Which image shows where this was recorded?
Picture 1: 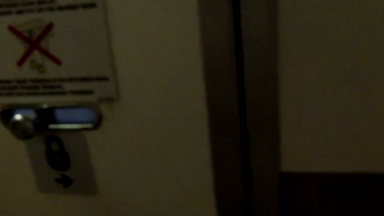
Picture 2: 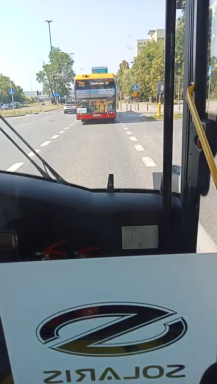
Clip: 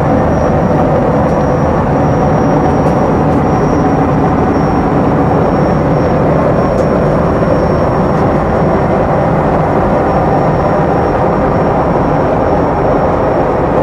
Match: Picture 1